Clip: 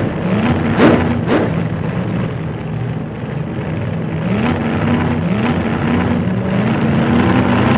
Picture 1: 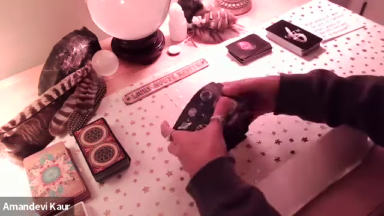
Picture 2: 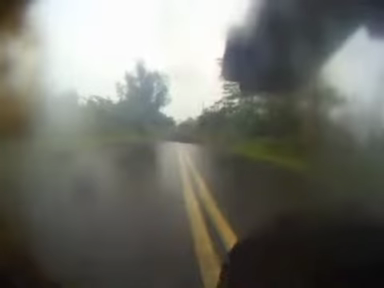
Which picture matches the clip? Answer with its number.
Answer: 2